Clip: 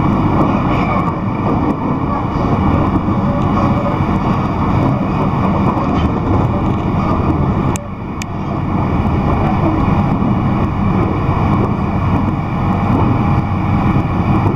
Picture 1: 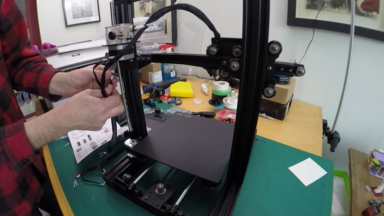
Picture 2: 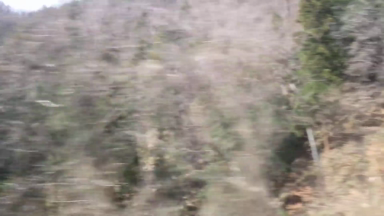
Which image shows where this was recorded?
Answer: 2